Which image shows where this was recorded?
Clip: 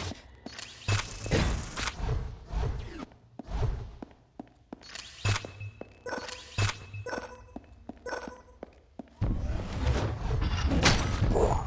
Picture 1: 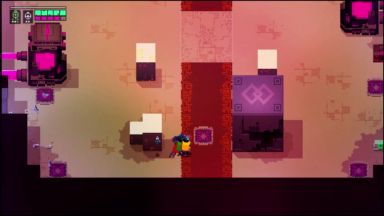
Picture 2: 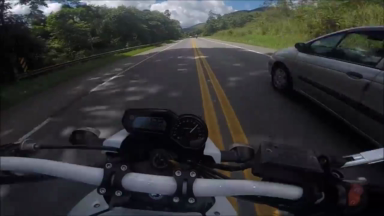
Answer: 1